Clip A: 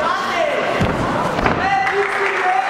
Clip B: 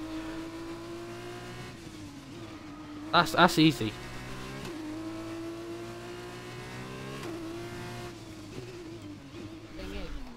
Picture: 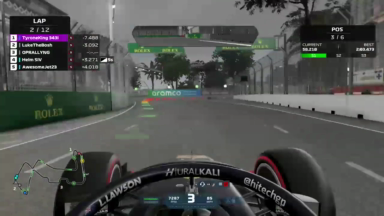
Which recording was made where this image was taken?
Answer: B